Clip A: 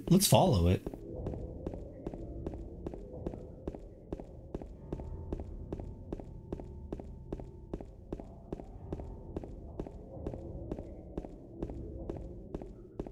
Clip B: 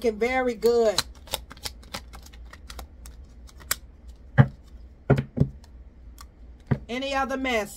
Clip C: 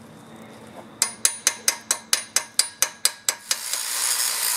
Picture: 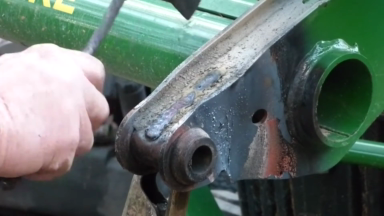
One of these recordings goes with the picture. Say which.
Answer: C